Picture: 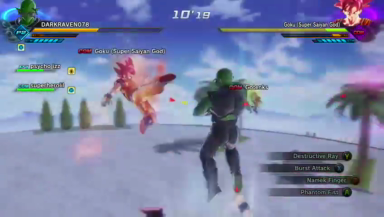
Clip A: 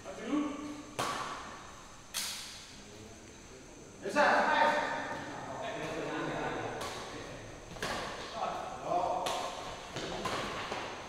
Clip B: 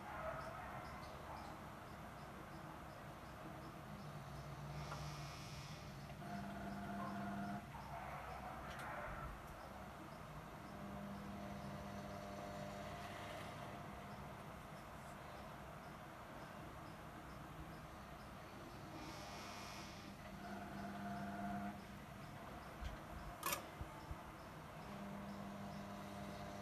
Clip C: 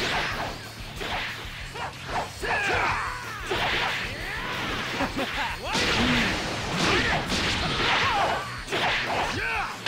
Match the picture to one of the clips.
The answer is C